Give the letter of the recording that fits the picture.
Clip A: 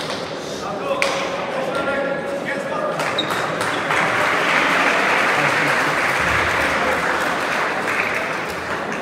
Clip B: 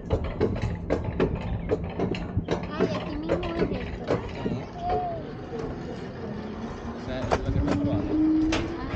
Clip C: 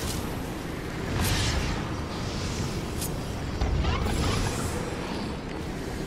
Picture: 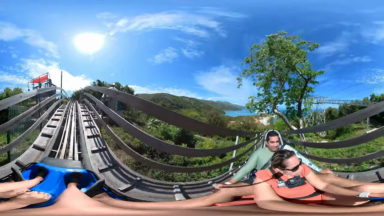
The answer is B